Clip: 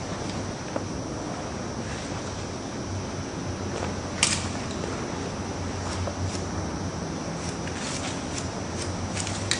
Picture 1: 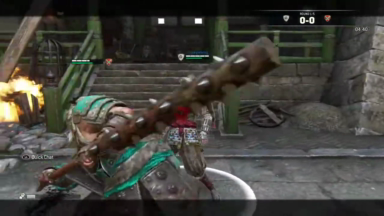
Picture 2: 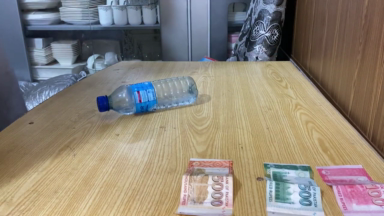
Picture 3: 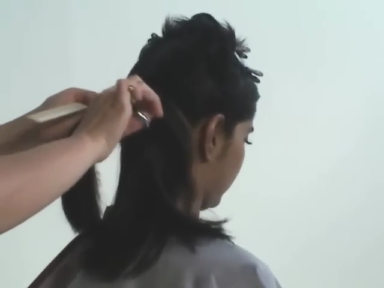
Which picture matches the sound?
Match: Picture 3